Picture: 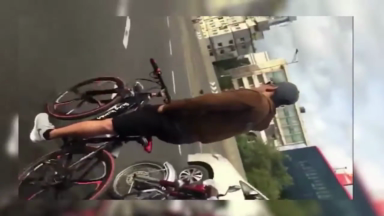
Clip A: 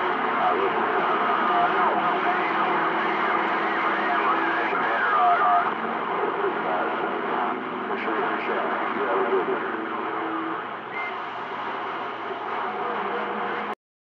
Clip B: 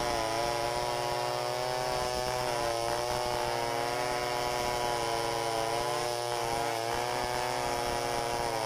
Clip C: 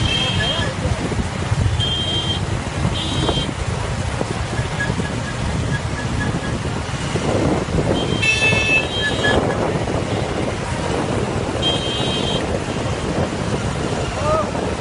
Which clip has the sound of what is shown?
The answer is C